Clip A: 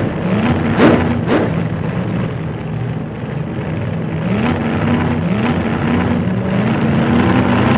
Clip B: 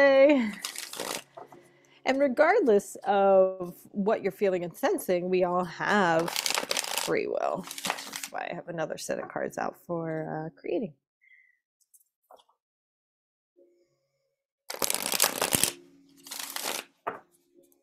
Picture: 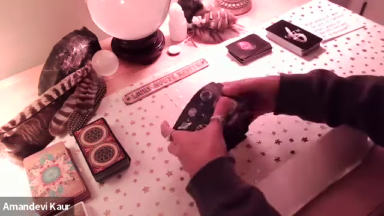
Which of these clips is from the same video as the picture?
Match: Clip B